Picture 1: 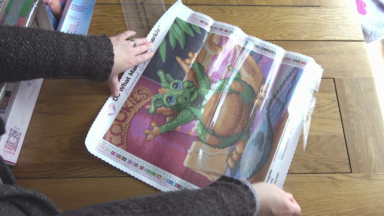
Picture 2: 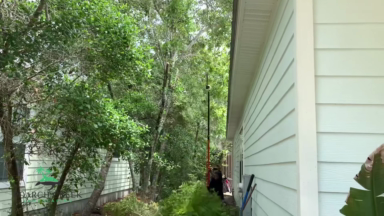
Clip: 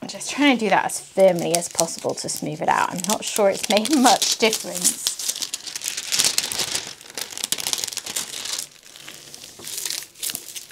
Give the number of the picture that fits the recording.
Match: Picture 1